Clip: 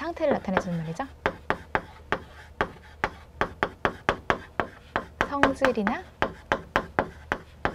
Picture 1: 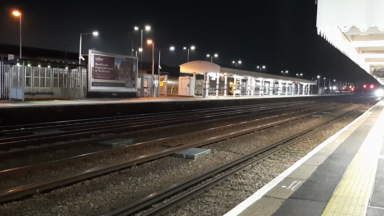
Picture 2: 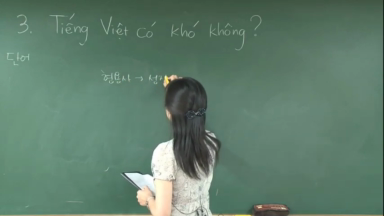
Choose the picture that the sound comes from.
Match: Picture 2